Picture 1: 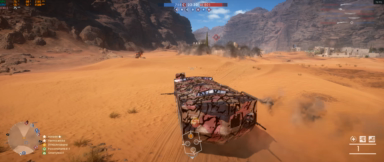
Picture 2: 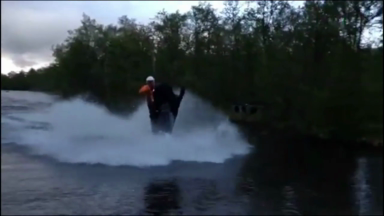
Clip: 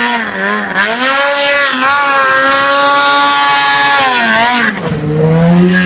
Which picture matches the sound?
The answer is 2